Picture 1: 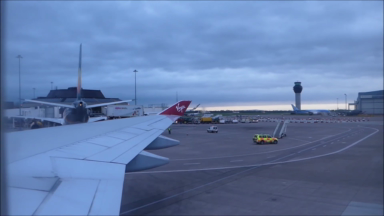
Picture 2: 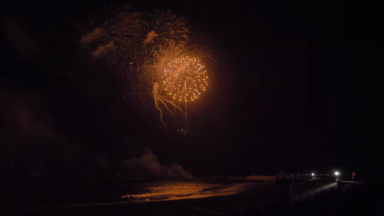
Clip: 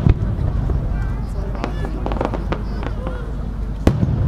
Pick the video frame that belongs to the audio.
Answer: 2